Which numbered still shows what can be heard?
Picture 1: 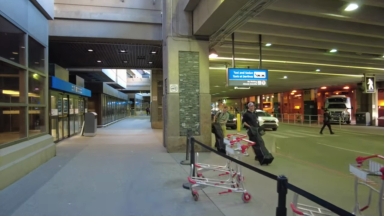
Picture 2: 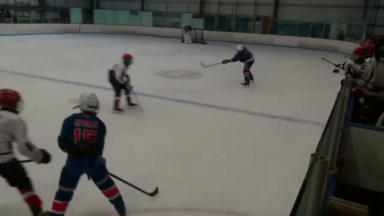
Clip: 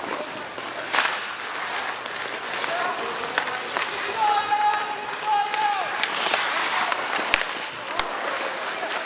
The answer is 2